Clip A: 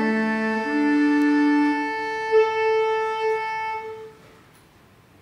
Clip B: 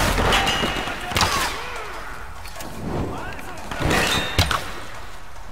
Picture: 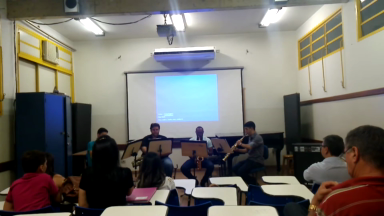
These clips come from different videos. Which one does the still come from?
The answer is A